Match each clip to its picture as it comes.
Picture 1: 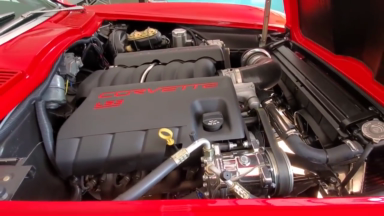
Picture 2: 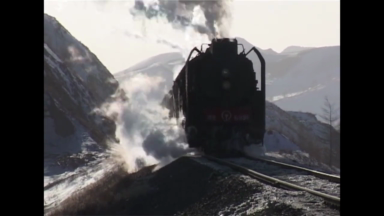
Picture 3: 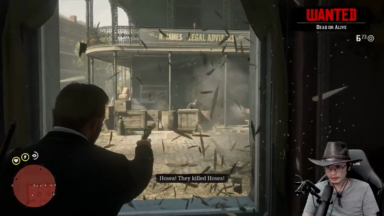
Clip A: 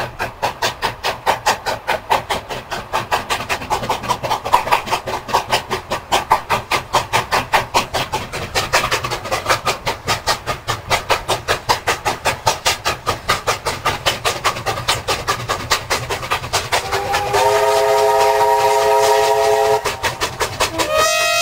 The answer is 2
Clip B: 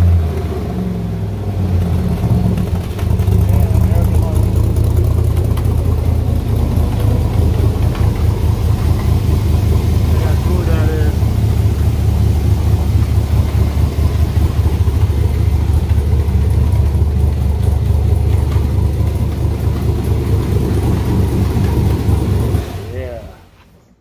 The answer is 1